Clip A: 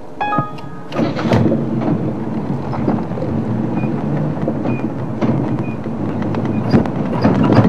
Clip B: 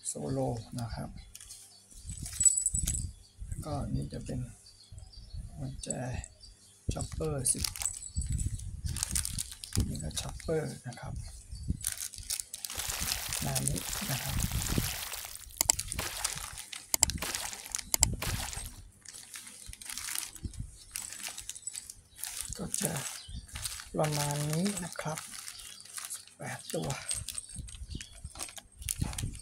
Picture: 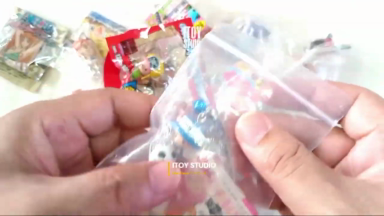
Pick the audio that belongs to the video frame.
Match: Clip B